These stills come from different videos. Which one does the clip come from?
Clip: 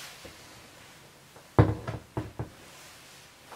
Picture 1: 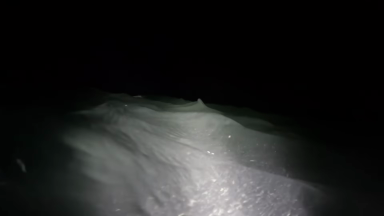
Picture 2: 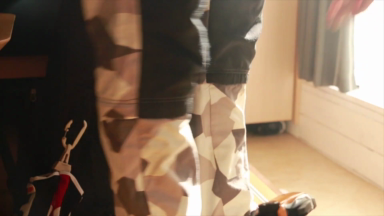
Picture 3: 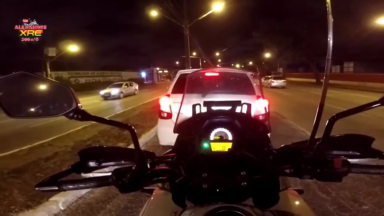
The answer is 2